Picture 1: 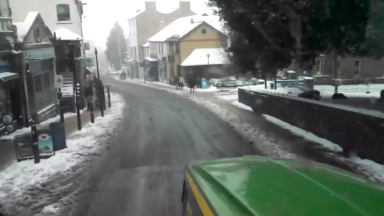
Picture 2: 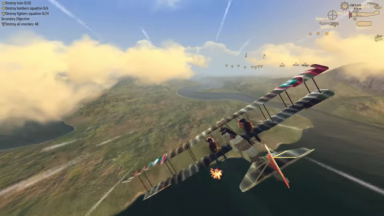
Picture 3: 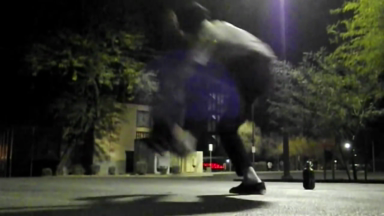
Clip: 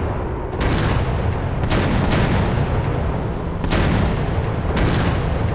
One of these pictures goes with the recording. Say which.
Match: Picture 2